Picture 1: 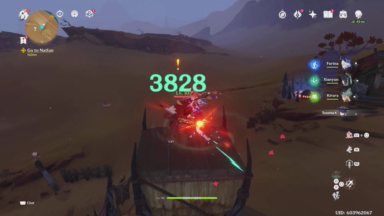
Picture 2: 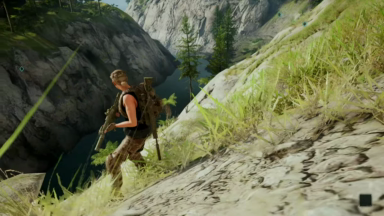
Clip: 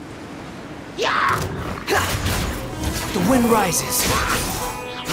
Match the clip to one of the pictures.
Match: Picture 1